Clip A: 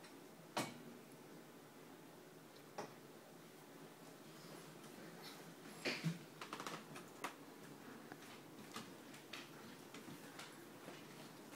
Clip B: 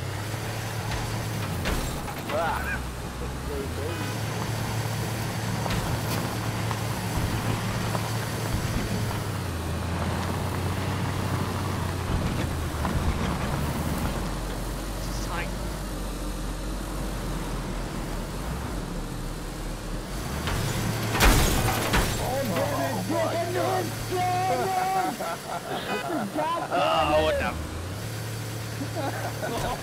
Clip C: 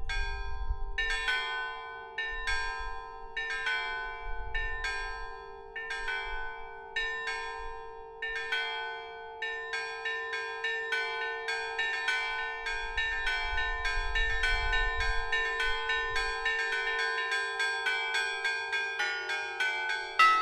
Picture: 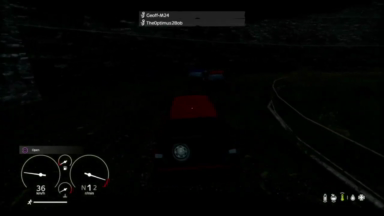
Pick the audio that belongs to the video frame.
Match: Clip B